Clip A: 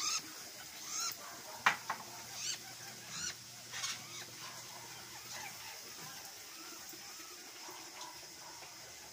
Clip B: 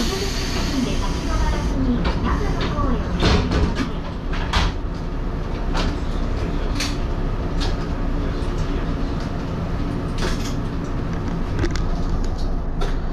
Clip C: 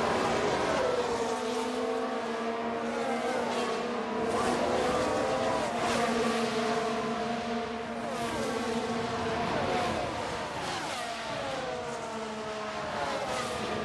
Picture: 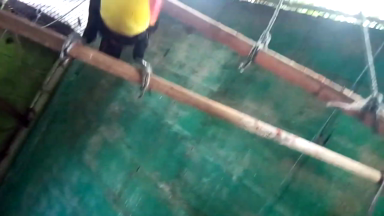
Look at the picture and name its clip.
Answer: A